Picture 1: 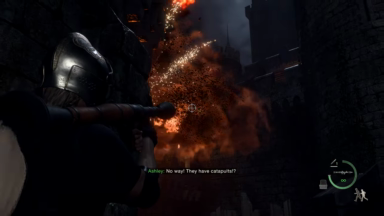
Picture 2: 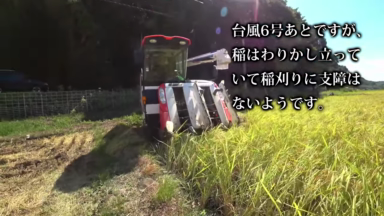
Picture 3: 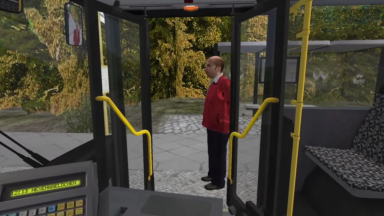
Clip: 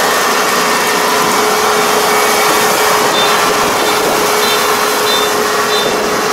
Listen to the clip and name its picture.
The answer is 2